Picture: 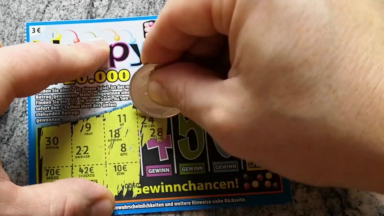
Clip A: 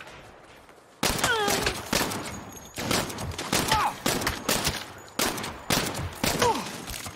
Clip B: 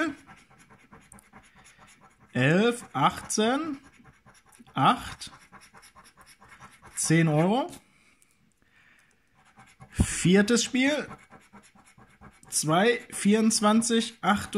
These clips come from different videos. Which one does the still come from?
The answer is B